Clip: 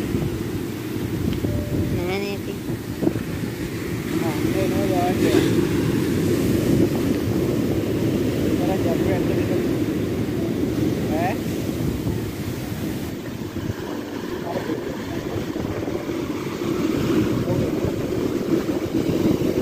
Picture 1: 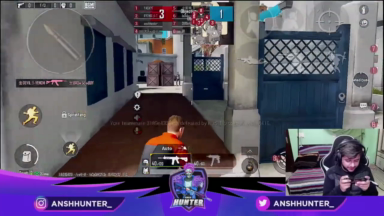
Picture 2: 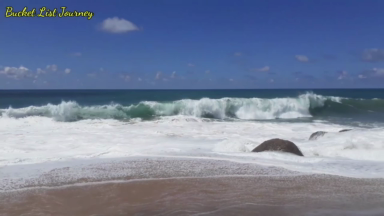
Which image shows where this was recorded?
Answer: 2